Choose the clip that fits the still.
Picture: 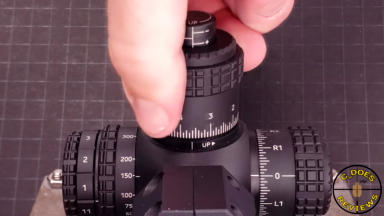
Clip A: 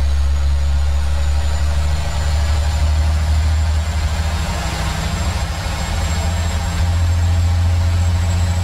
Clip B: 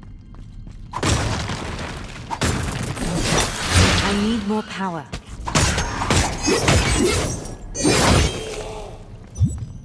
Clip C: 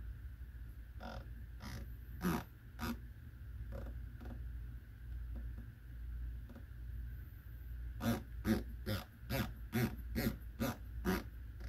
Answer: C